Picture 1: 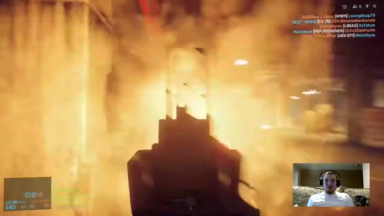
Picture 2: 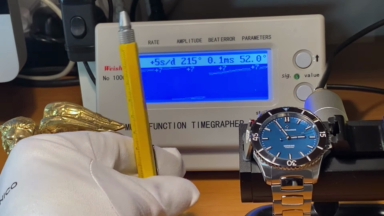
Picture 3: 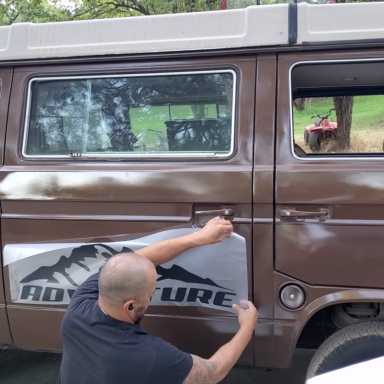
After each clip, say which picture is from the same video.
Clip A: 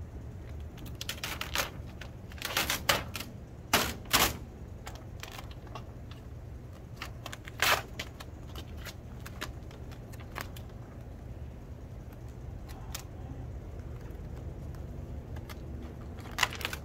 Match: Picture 3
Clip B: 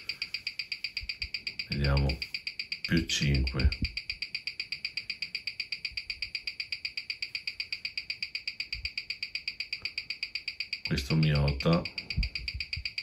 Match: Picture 2